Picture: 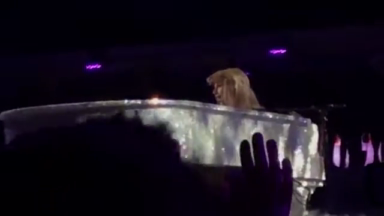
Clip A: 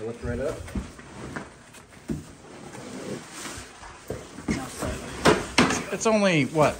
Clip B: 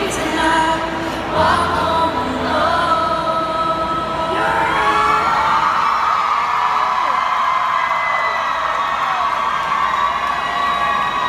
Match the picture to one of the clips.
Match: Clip B